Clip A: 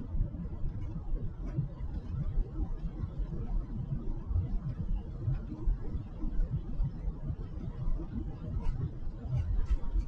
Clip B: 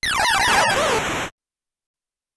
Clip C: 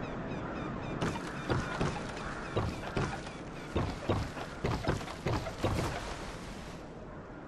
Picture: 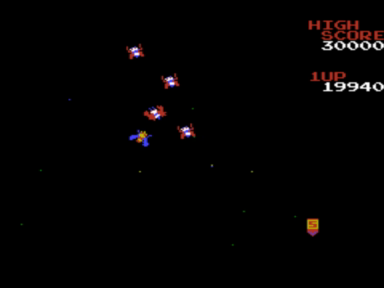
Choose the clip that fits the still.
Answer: B